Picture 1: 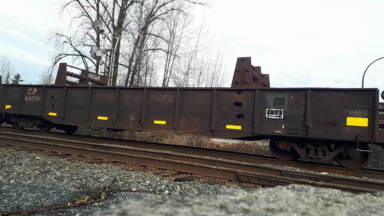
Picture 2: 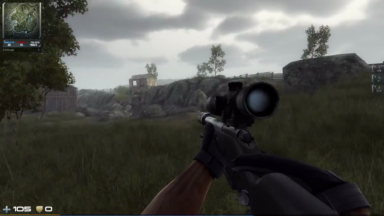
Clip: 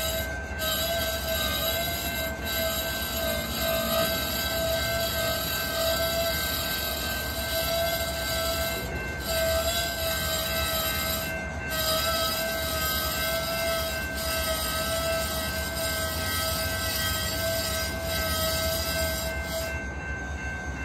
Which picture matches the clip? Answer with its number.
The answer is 1